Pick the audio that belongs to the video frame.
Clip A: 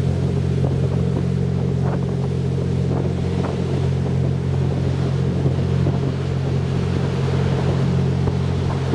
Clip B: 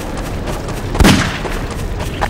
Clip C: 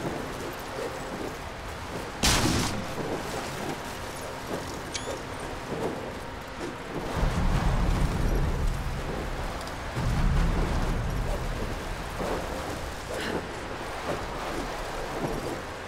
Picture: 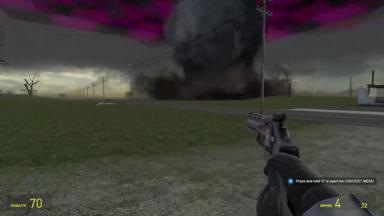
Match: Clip B